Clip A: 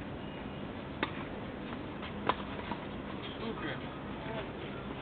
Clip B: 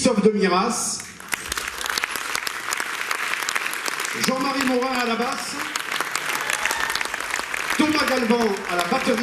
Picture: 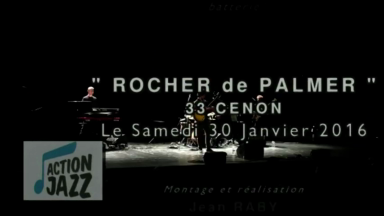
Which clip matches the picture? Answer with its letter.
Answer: B